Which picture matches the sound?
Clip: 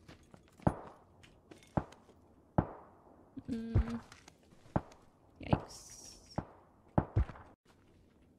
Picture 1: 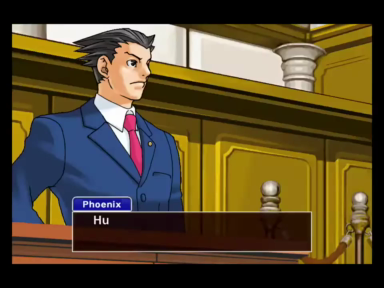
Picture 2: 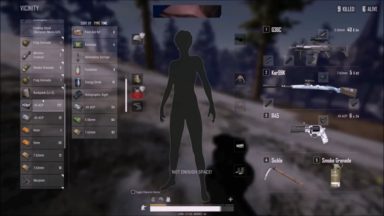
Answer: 2